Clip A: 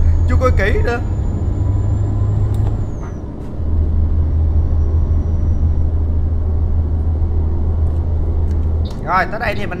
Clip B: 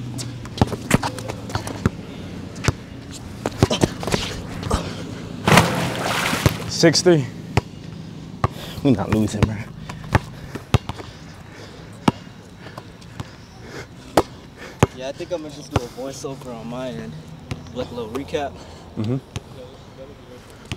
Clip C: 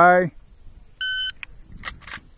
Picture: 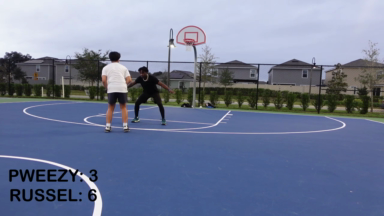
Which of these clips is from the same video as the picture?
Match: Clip B